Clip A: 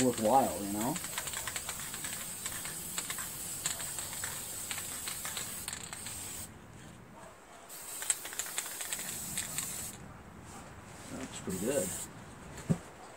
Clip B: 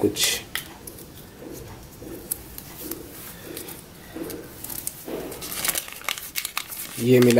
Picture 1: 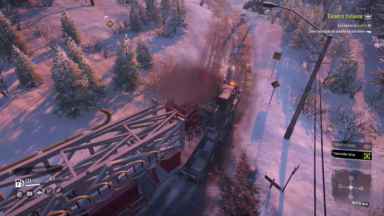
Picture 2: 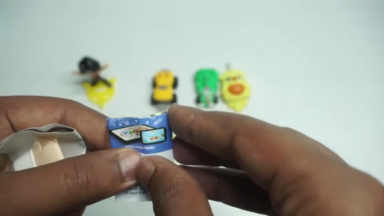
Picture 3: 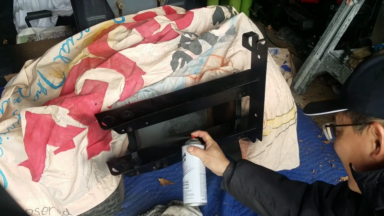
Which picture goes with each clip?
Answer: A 3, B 2